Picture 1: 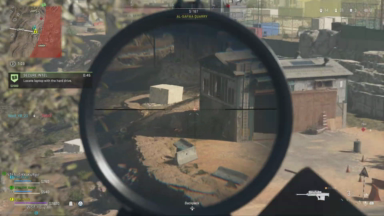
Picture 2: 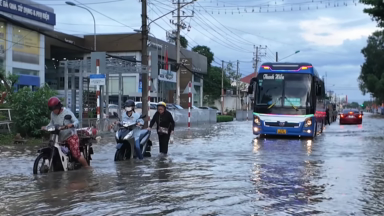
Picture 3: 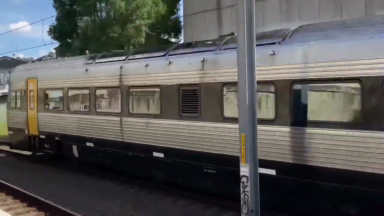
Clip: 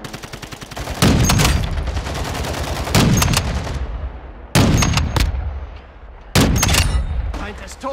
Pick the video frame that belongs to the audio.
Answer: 1